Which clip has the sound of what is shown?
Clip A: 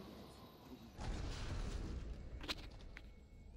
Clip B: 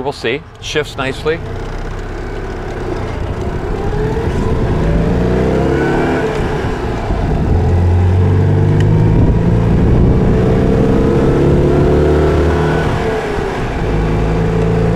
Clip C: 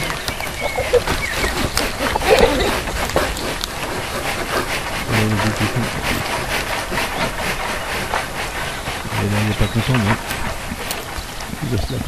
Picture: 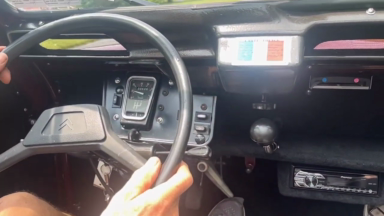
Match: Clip B